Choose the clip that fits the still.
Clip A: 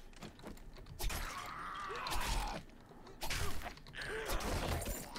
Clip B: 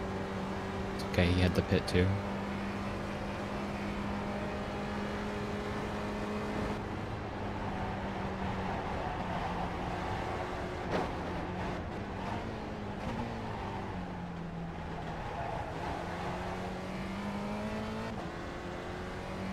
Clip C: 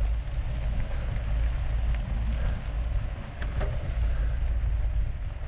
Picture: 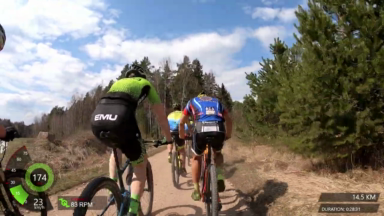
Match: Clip C